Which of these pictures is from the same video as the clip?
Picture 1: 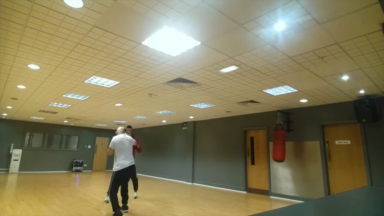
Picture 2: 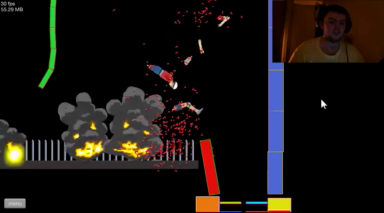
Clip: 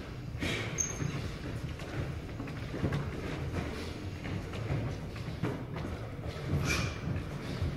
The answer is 1